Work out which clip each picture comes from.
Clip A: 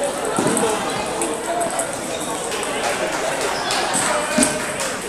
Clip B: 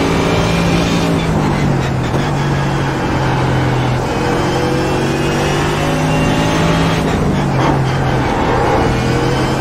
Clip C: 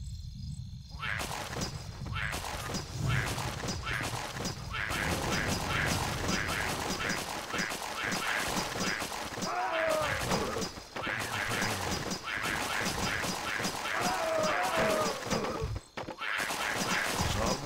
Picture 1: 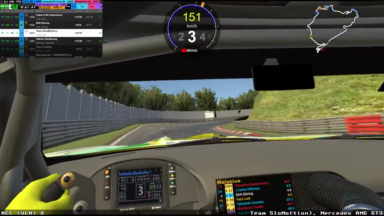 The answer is B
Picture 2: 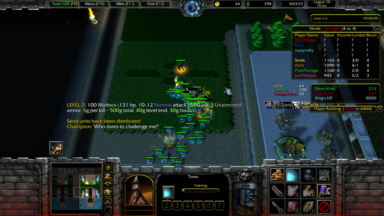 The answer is C